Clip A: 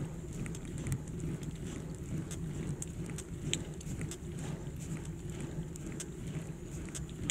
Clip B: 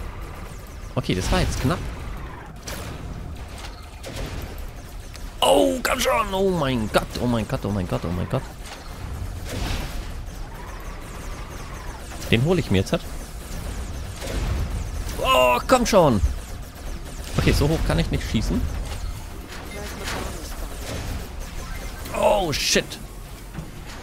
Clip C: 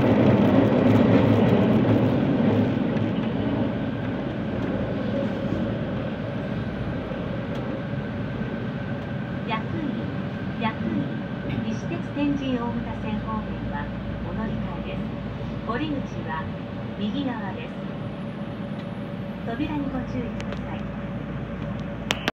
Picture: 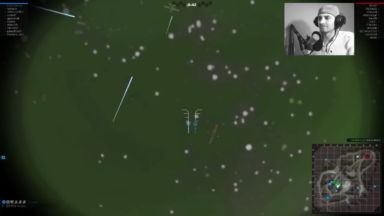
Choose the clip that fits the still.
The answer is B